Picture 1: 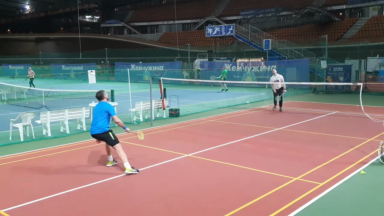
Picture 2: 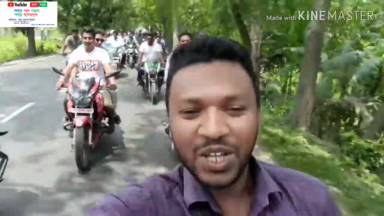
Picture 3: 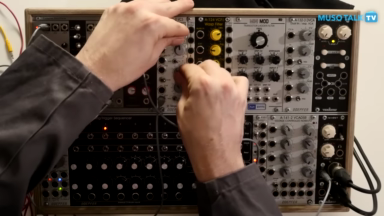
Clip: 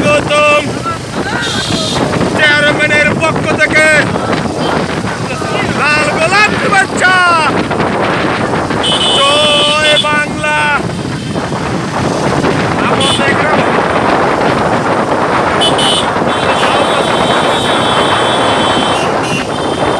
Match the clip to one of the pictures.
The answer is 2